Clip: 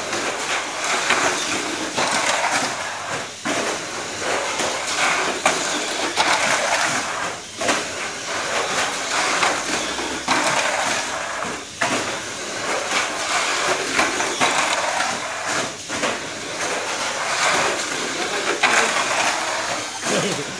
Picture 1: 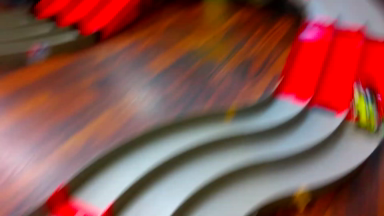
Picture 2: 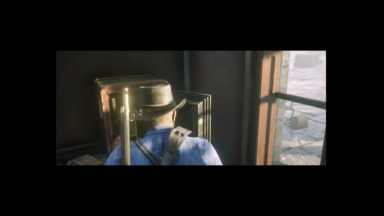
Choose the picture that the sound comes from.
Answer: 1